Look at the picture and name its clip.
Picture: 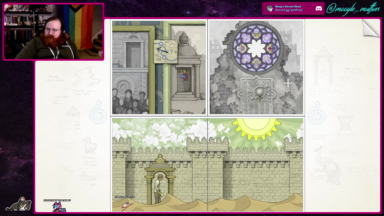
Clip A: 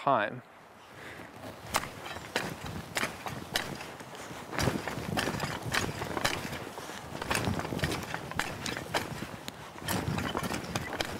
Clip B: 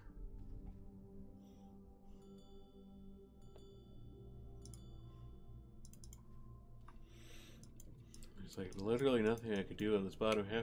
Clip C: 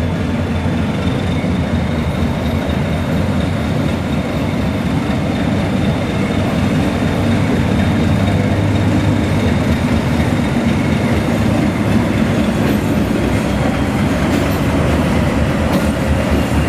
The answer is B